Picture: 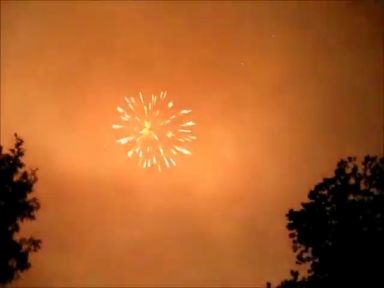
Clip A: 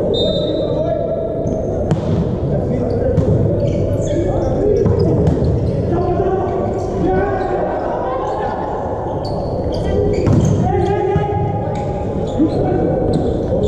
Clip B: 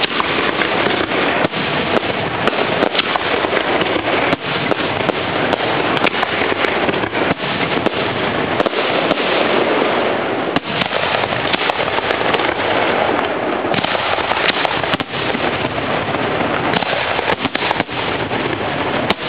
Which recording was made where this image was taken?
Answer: B